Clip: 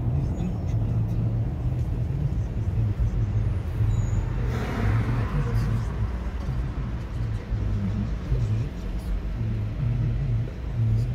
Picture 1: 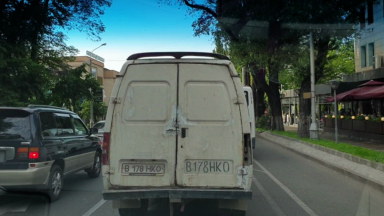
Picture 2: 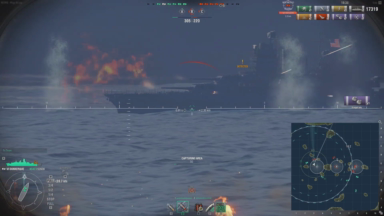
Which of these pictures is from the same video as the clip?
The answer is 1